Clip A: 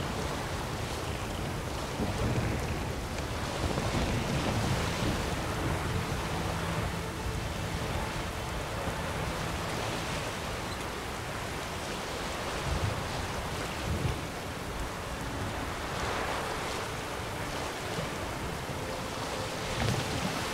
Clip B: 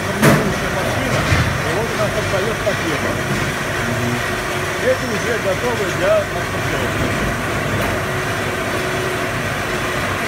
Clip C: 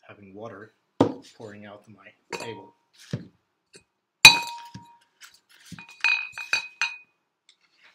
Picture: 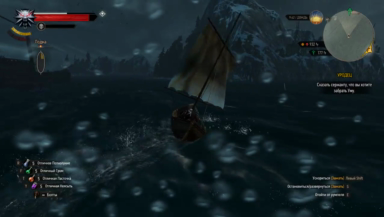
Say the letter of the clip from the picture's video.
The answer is A